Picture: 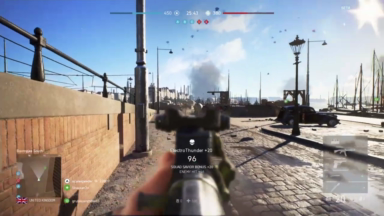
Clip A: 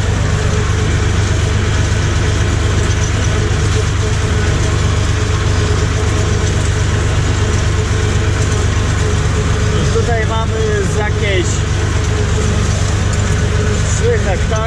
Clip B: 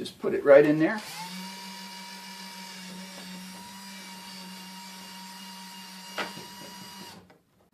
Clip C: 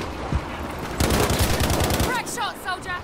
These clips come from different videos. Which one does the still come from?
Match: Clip C